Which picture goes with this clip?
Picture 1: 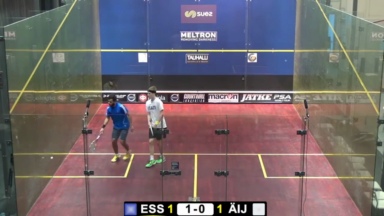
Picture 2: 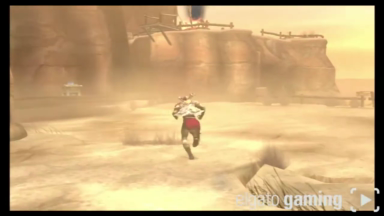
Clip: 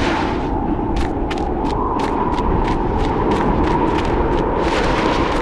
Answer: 2